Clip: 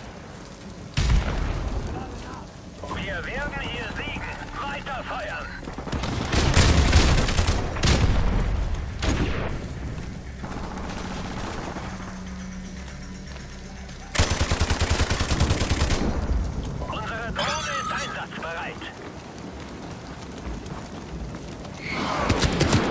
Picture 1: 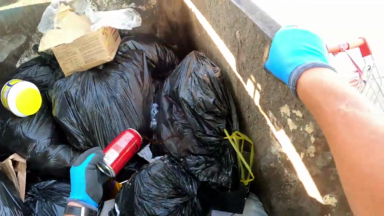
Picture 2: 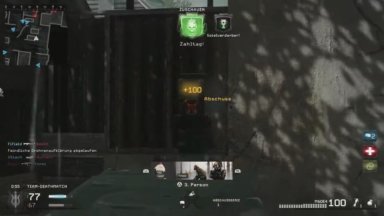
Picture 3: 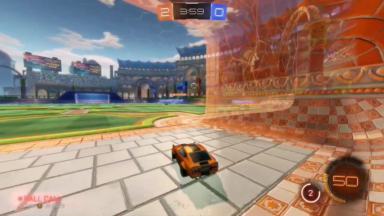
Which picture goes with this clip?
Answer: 2